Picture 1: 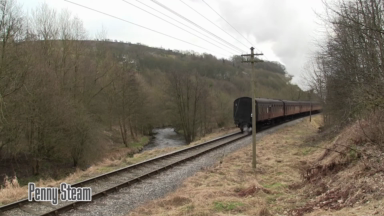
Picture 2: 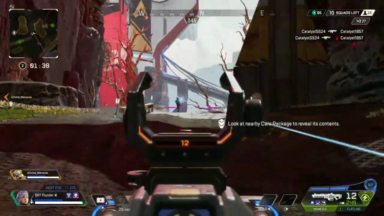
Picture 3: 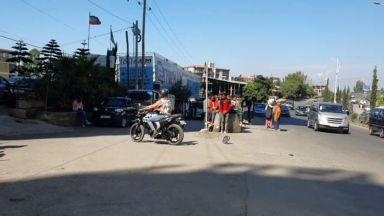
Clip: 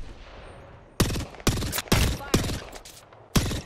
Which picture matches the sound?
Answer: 2